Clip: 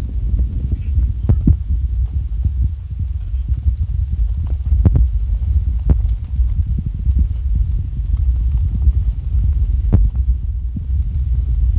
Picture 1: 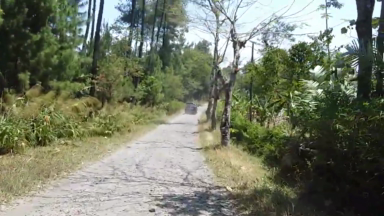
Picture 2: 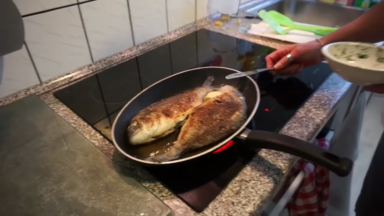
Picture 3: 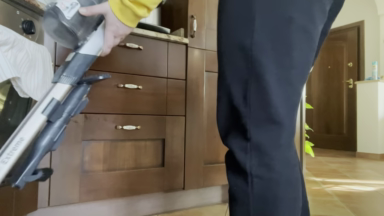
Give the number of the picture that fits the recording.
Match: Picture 1